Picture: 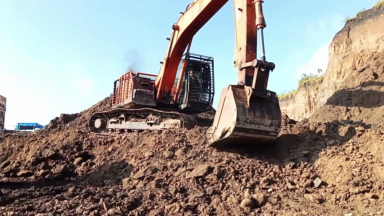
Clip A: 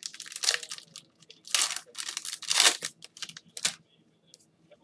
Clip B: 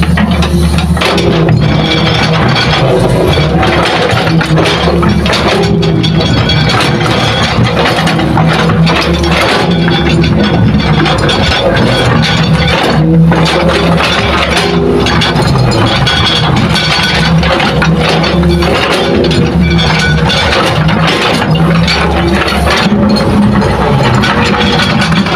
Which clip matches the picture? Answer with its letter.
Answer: B